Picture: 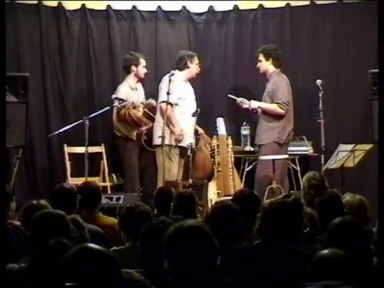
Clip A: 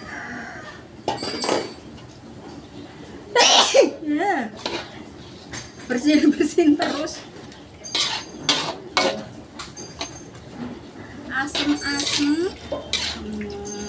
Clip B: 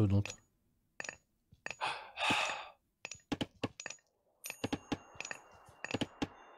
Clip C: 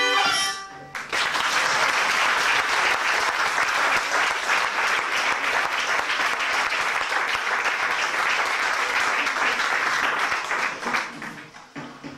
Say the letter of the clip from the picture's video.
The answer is C